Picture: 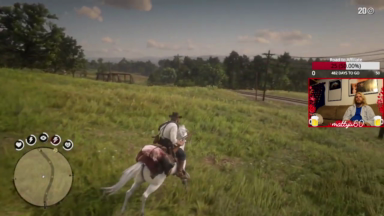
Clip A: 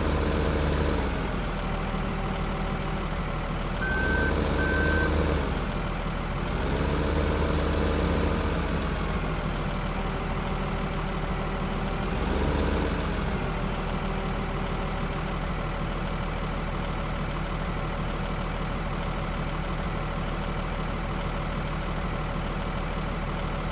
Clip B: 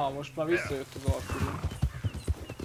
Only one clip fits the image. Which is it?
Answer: B